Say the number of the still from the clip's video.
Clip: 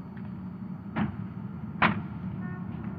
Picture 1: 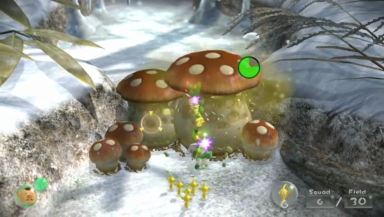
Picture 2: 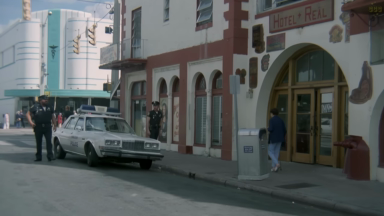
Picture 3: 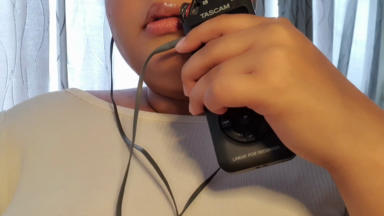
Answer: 2